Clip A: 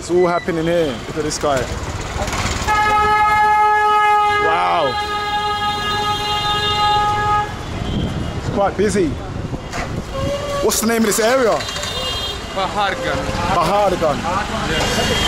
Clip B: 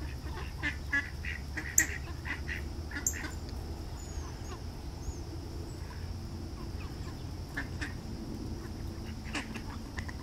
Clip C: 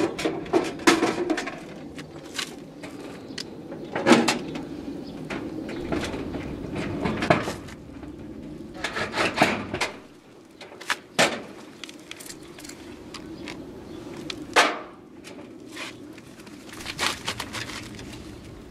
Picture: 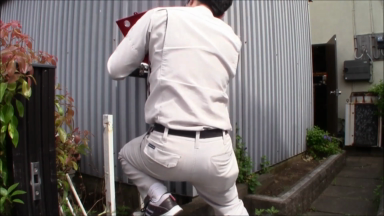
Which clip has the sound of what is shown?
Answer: C